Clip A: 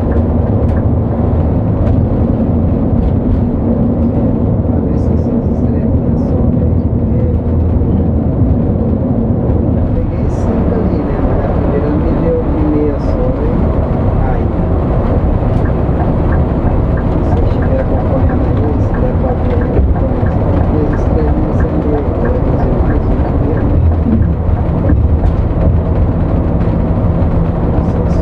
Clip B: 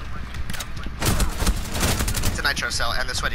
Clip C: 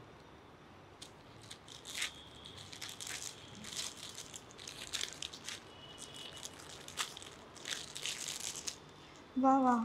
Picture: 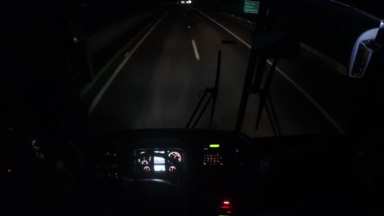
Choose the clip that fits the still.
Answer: A